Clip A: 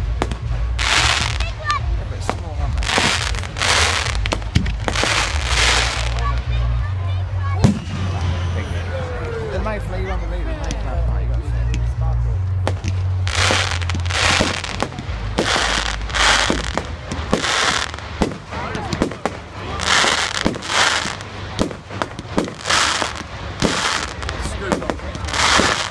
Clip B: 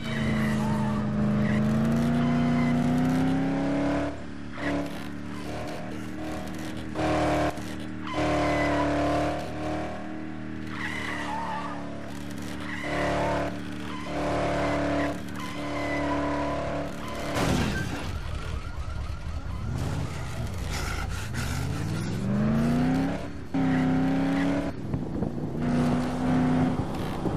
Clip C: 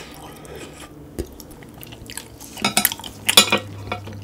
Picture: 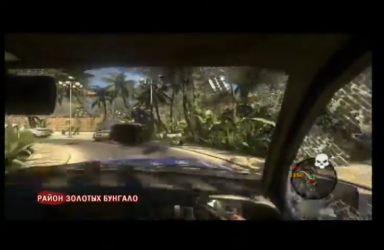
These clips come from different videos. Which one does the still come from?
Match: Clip B